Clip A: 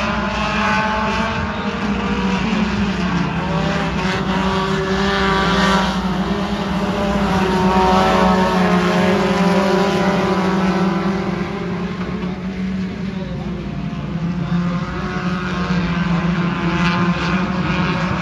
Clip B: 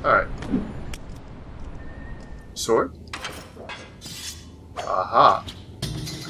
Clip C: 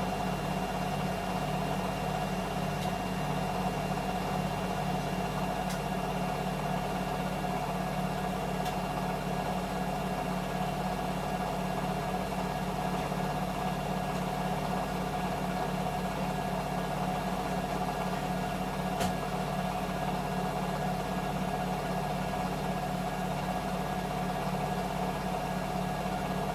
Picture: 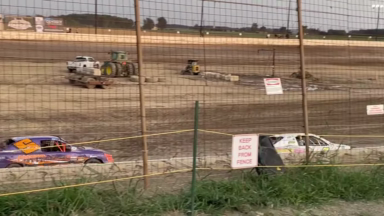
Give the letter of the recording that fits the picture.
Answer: A